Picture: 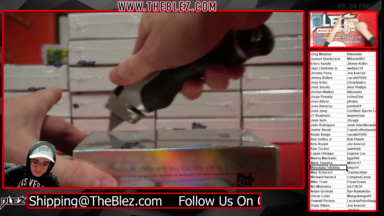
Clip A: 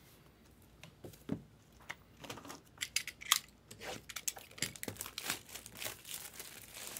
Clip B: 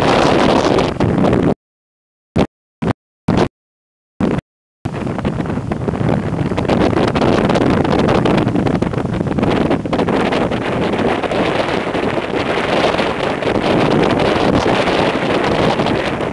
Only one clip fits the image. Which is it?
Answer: A